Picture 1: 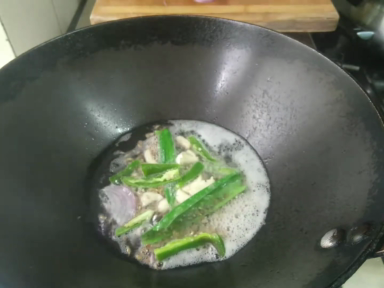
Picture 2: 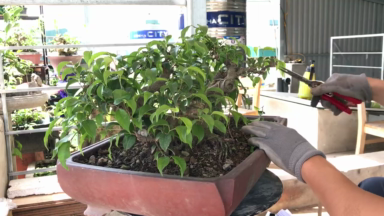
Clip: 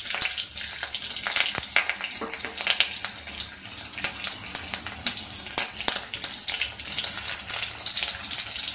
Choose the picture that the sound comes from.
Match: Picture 1